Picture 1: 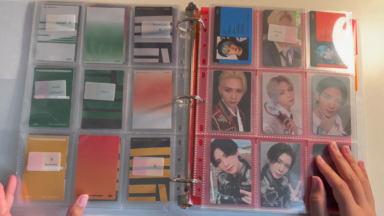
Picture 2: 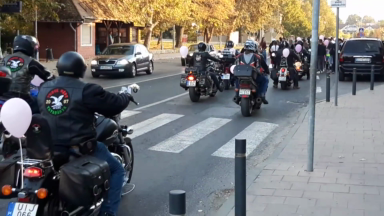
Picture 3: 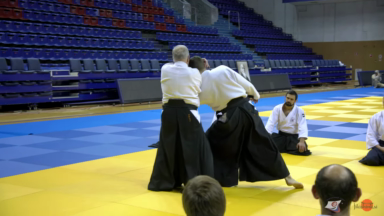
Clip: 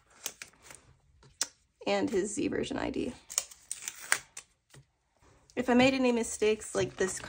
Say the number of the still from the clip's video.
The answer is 1